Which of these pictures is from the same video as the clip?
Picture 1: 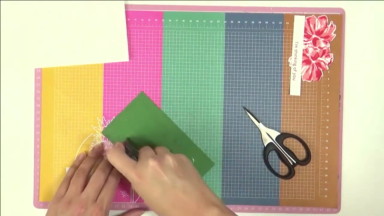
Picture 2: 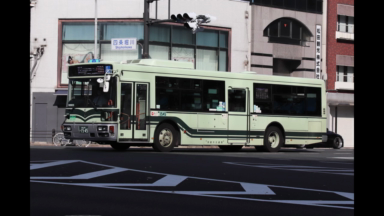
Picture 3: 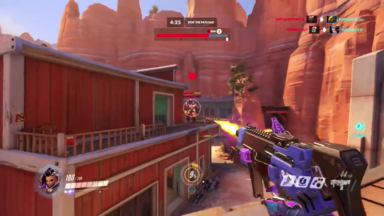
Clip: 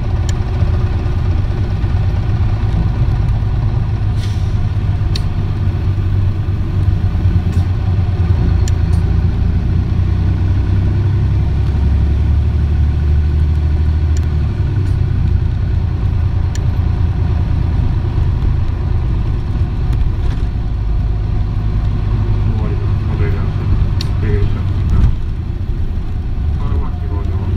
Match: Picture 2